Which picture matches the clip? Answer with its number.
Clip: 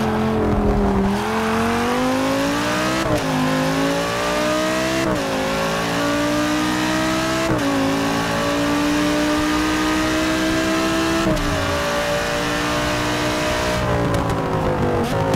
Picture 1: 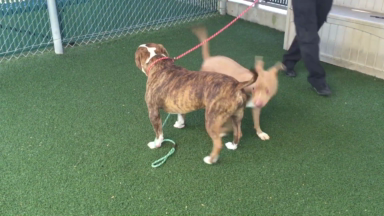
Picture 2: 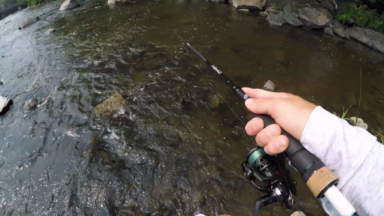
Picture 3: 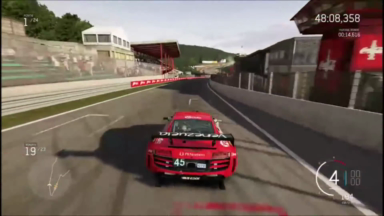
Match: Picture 3